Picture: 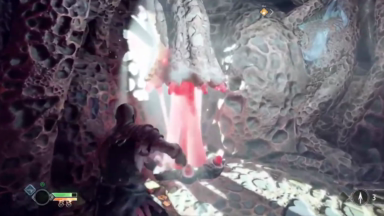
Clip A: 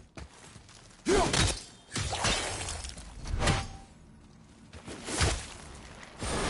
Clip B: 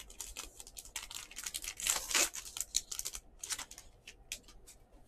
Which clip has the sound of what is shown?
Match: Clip A